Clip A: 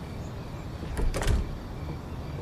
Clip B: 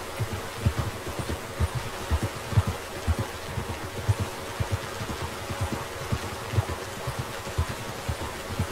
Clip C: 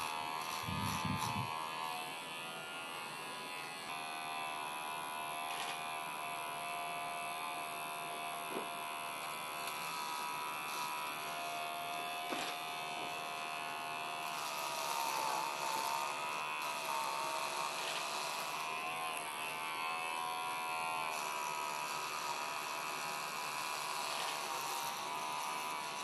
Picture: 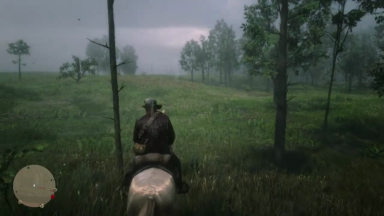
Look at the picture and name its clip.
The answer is B